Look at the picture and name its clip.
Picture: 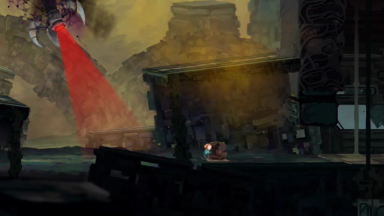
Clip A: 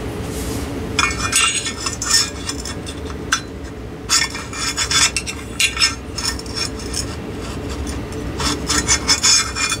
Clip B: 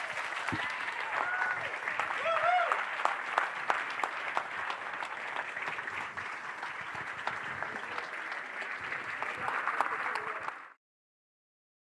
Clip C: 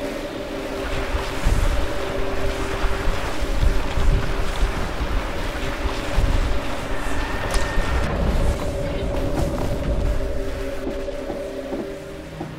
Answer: C